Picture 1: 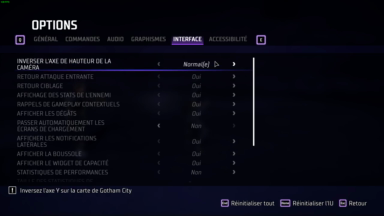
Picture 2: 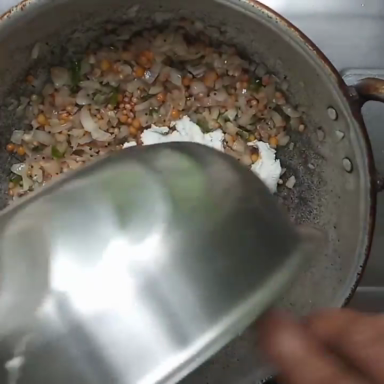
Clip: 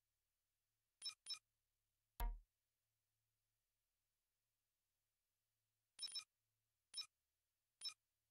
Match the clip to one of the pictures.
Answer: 1